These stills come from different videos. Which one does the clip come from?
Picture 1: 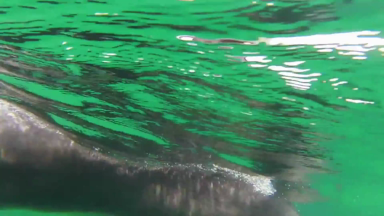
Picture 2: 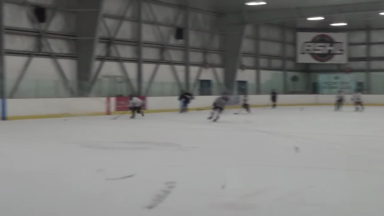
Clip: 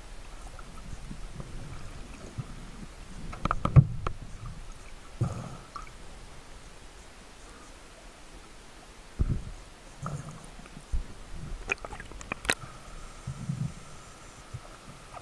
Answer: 1